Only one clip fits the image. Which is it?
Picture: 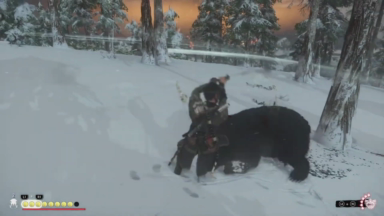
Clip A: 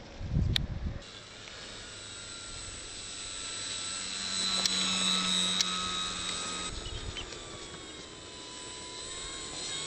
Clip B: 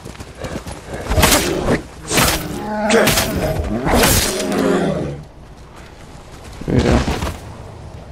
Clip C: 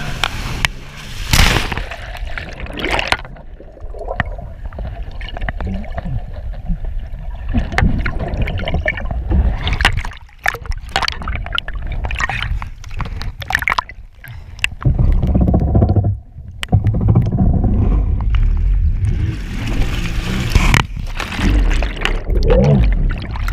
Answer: B